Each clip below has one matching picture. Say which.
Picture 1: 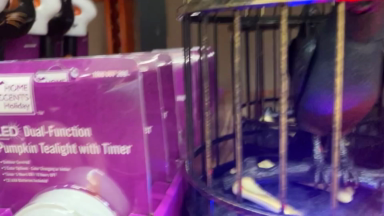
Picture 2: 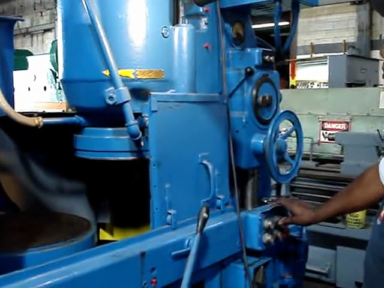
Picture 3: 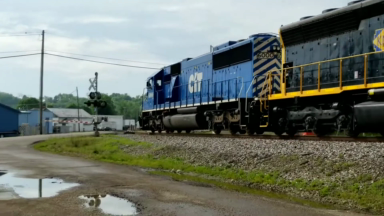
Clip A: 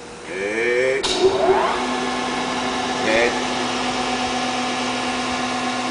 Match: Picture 2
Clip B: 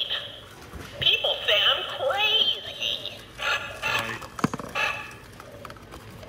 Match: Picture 1